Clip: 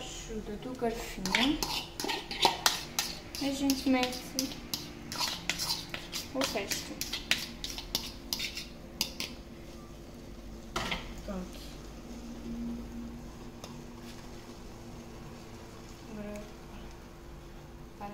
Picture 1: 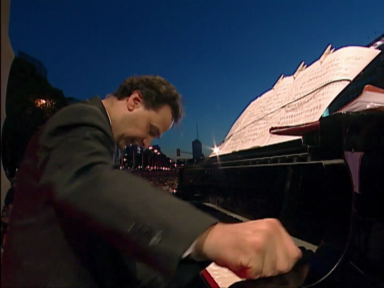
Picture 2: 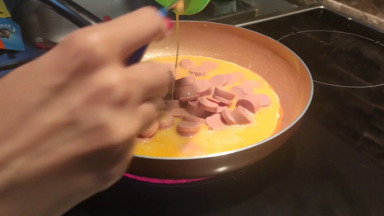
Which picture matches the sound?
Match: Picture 2